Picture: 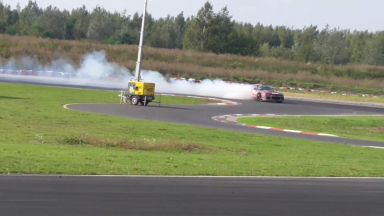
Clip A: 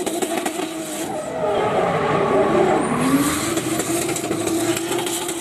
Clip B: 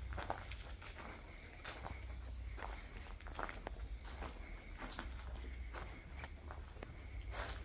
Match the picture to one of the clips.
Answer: A